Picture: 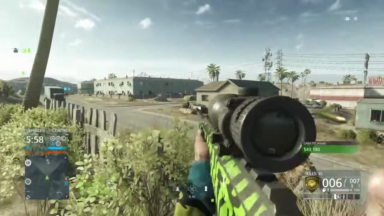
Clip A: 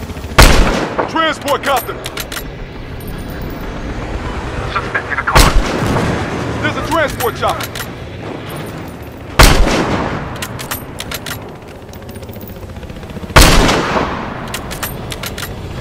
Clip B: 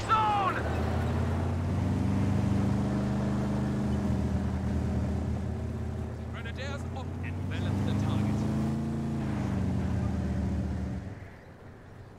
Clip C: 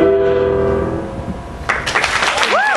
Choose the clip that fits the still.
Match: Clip A